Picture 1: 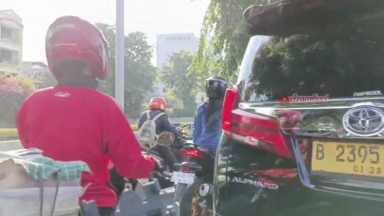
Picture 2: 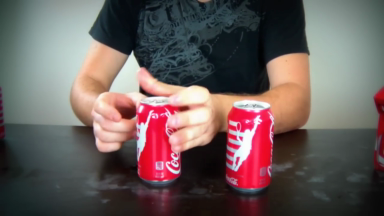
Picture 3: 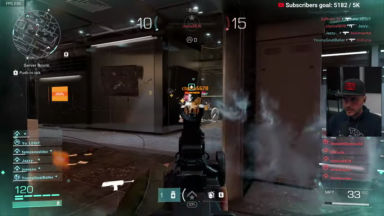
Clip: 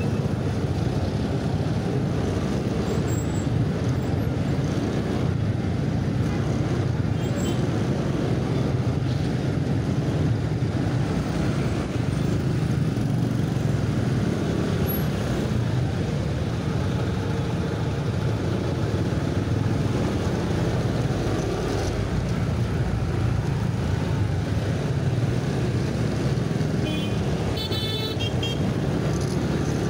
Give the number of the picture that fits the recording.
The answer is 1